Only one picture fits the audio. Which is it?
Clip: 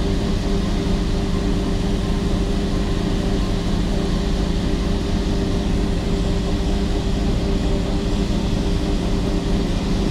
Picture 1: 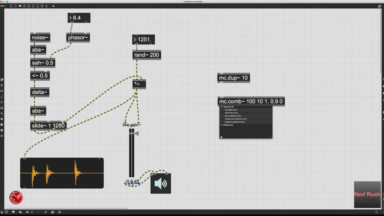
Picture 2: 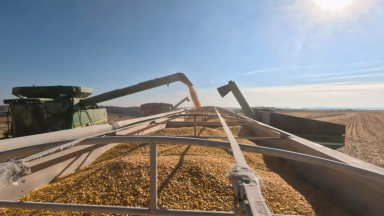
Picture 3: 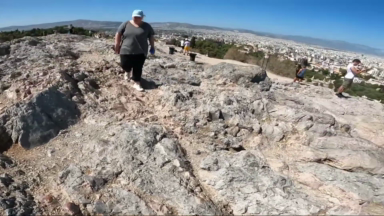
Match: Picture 2